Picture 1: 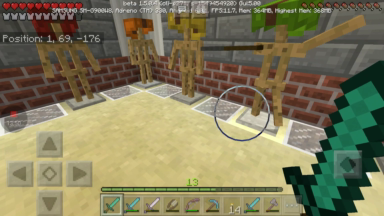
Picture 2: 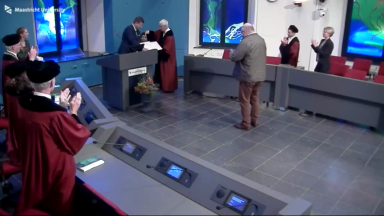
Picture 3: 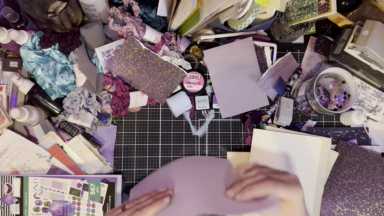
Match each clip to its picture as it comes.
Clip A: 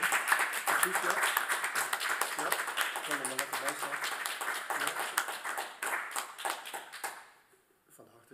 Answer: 2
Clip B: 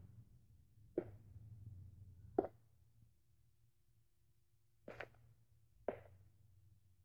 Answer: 1